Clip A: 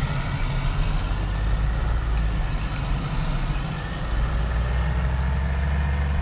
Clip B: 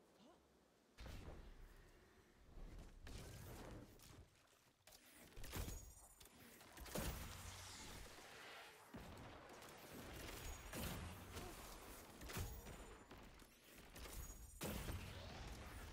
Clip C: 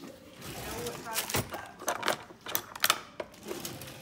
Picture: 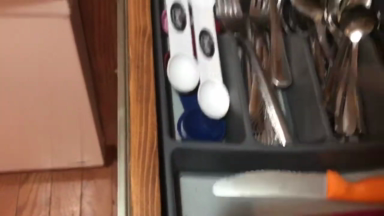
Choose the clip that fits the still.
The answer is C